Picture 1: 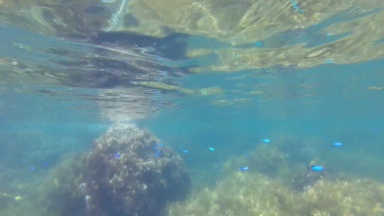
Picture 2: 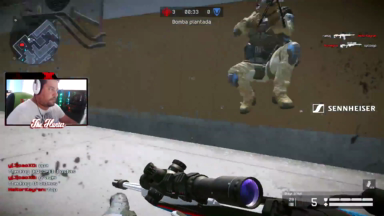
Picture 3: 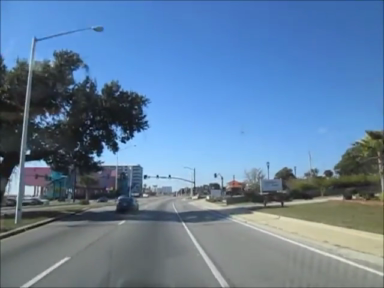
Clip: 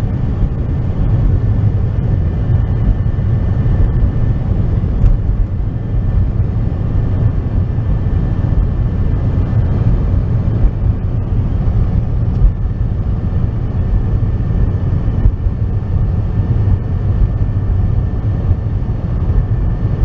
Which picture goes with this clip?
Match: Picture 3